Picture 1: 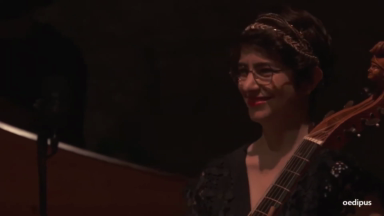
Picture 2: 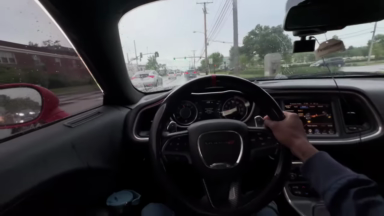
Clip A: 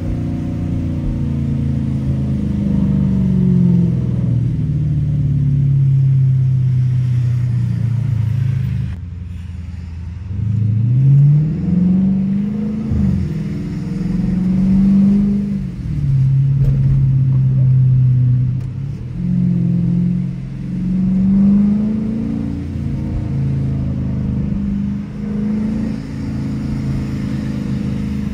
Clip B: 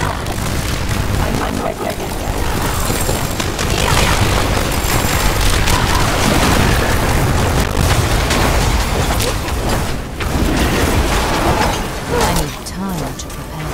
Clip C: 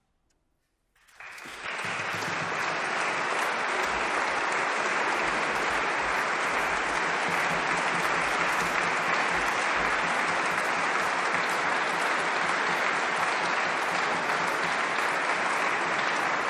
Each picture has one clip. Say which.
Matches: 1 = C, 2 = A